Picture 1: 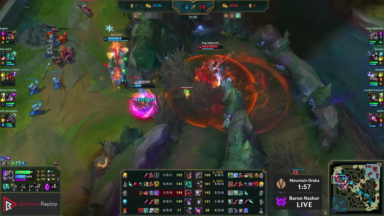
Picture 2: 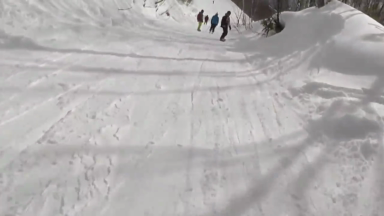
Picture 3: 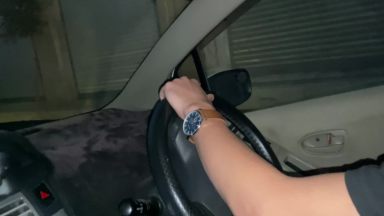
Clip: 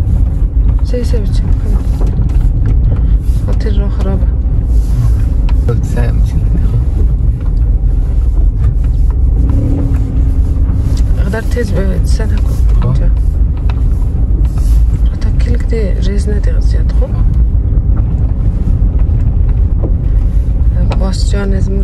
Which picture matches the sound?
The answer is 3